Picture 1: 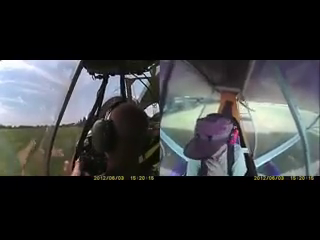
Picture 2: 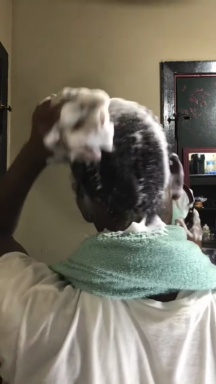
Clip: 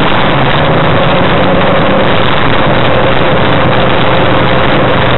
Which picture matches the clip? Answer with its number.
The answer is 1